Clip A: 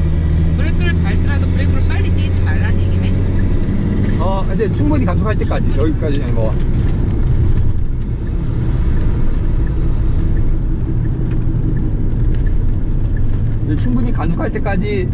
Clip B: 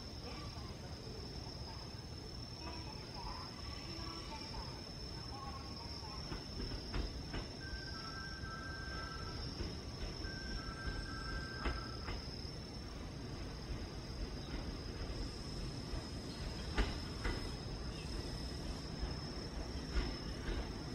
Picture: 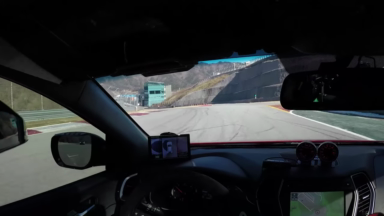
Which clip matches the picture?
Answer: A